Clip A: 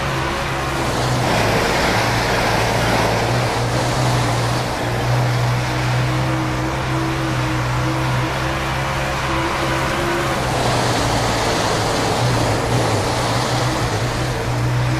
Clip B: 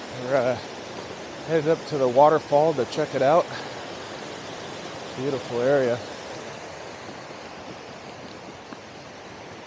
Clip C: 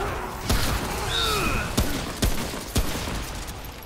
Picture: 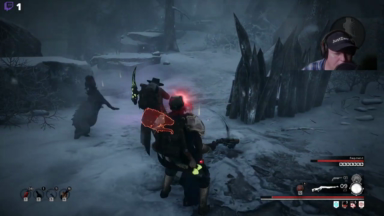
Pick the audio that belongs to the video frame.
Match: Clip C